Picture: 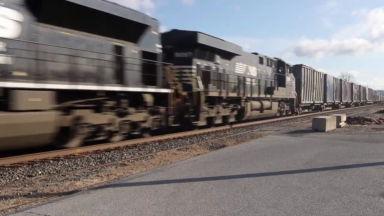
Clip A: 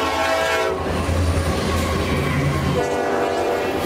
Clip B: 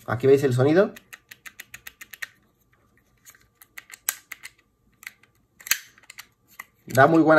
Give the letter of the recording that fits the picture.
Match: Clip A